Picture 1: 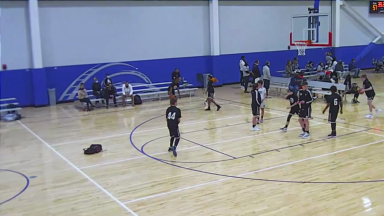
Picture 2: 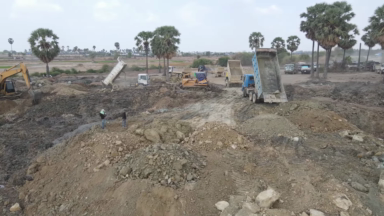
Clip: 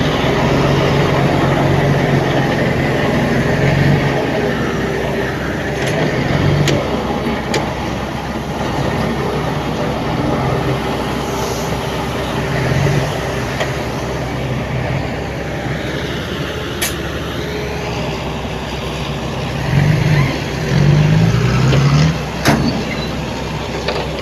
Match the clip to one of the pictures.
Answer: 2